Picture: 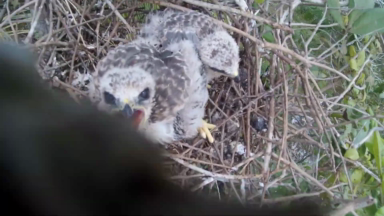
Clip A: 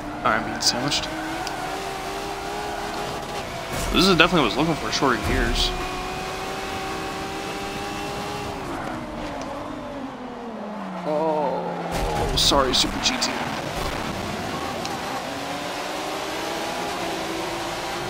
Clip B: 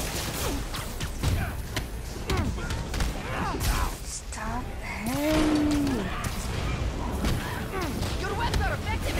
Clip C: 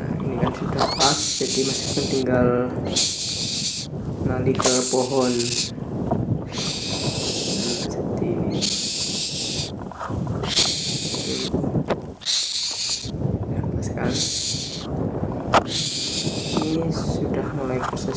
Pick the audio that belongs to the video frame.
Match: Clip C